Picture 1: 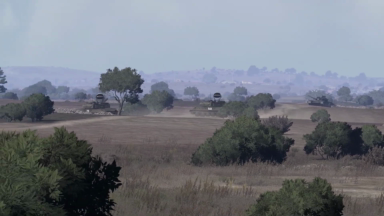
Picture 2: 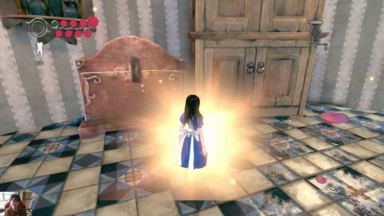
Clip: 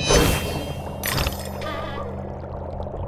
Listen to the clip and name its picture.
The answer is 2